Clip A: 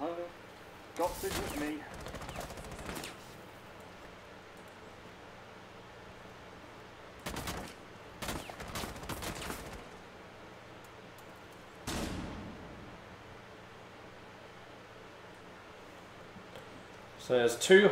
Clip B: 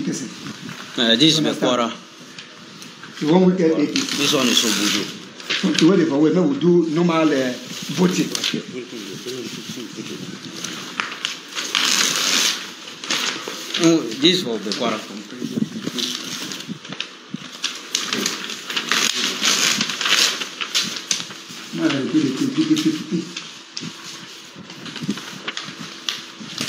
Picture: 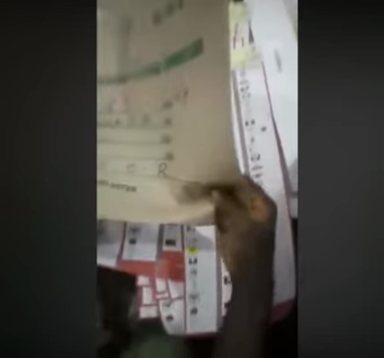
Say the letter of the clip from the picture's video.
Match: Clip B